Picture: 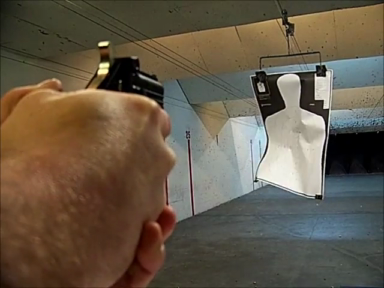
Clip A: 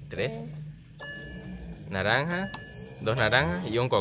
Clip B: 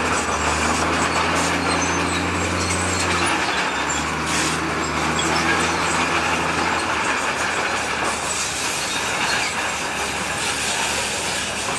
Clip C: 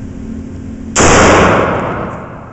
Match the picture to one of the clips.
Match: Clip C